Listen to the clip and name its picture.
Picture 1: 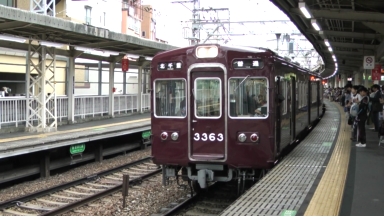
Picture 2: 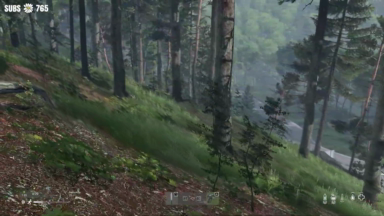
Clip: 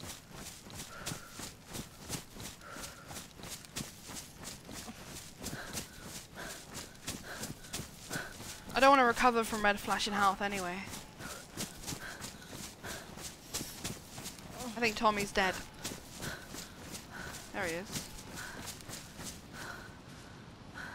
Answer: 2